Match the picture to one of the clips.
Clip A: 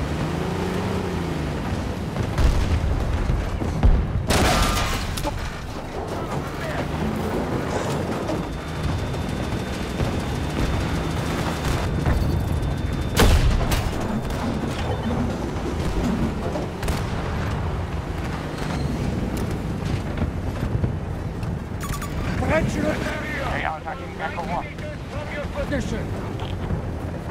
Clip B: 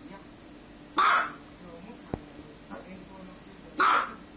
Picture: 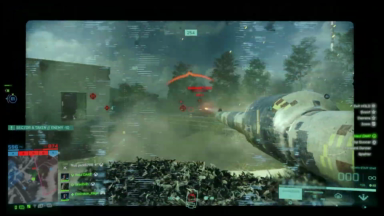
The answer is A